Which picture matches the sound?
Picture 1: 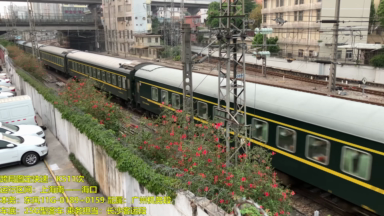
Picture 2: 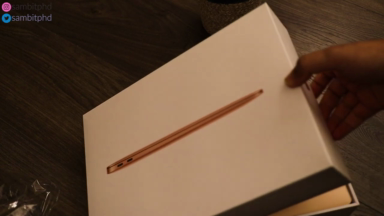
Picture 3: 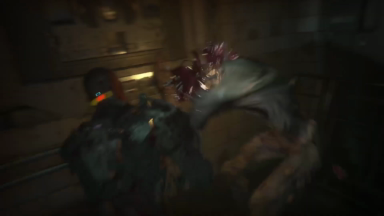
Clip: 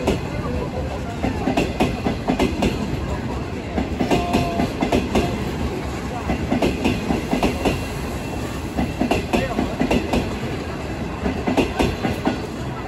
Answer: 1